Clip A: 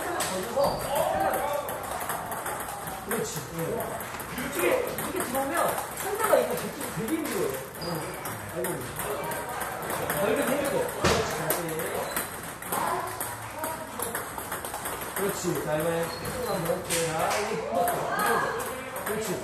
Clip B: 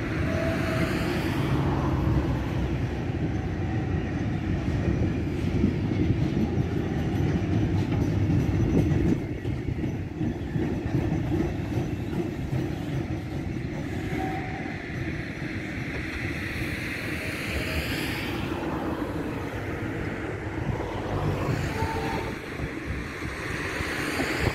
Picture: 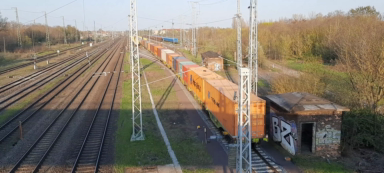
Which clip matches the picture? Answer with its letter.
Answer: B